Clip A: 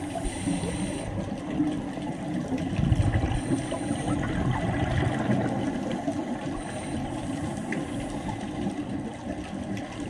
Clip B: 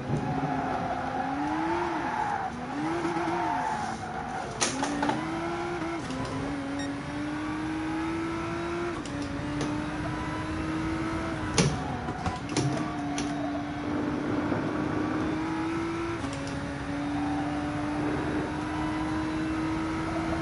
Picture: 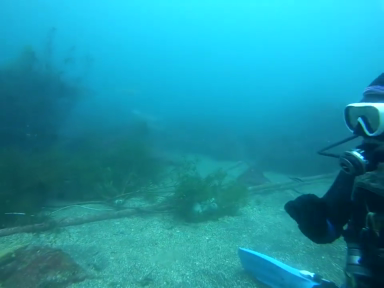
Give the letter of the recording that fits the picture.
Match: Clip A